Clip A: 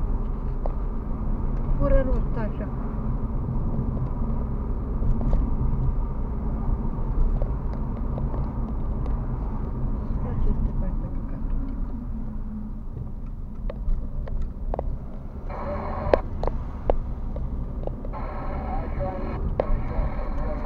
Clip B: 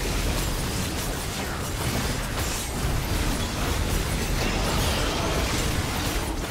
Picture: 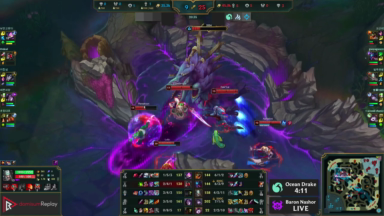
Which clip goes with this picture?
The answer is B